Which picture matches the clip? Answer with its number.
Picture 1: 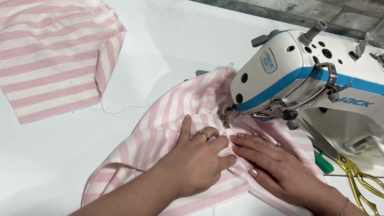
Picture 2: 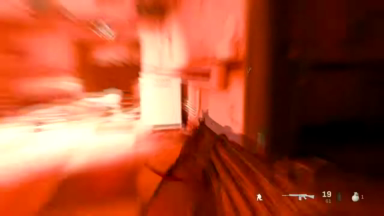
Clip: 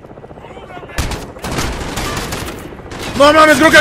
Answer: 2